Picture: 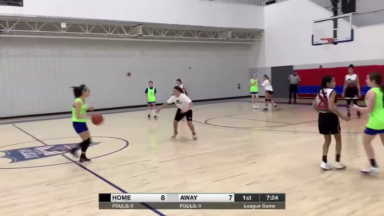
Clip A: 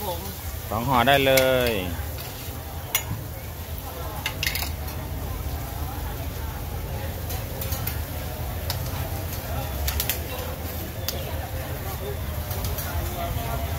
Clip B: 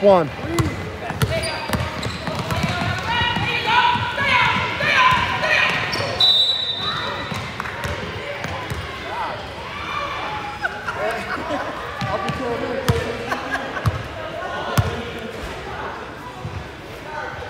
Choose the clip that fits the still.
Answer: B